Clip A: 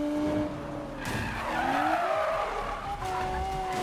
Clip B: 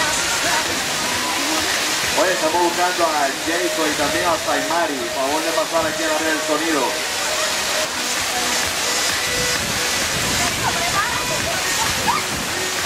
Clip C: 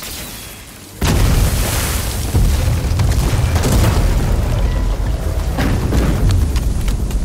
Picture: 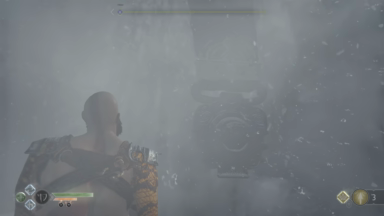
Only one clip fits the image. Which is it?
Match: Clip C